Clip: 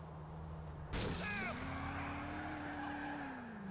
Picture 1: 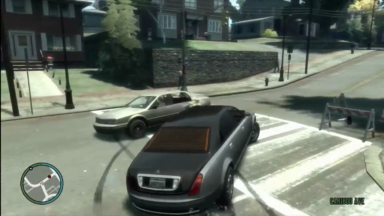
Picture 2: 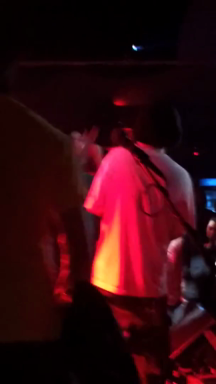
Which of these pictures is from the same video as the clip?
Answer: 1